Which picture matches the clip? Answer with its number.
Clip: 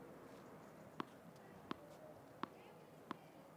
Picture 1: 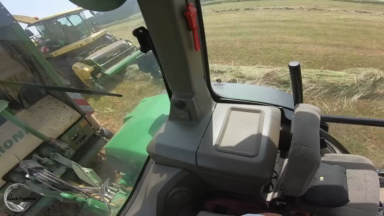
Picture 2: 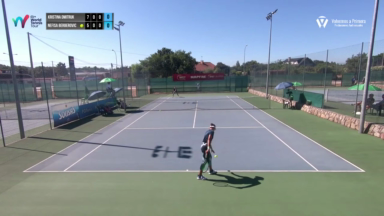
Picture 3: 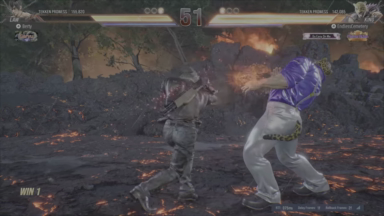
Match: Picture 2